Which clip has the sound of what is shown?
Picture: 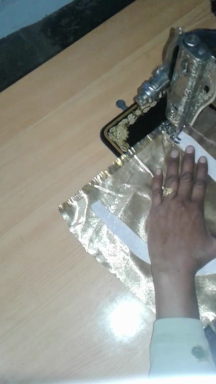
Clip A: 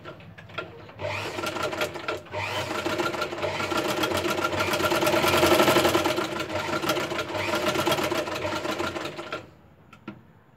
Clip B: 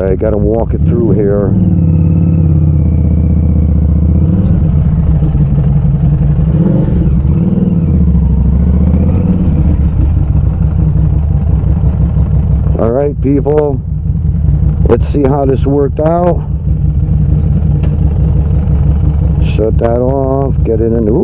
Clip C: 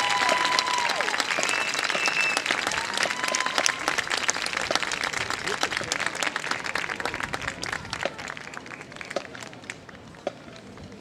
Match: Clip A